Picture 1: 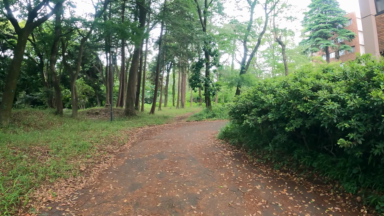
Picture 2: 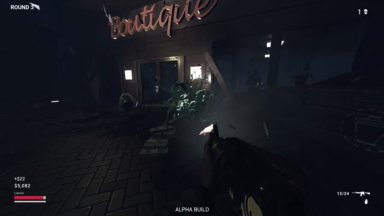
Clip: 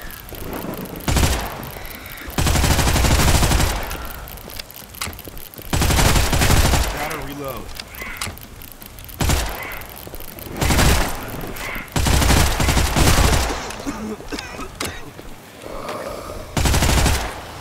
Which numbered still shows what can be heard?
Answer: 2